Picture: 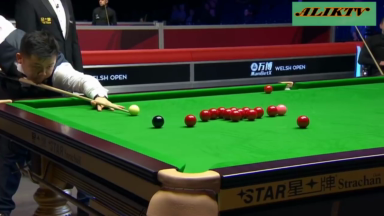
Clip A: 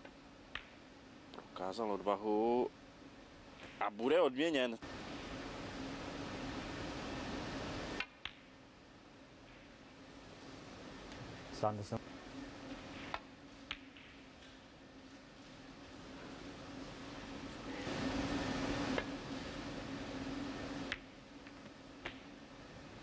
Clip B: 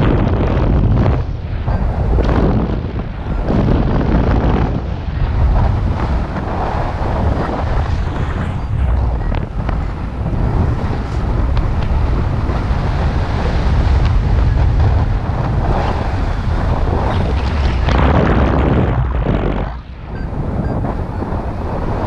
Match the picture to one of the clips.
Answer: A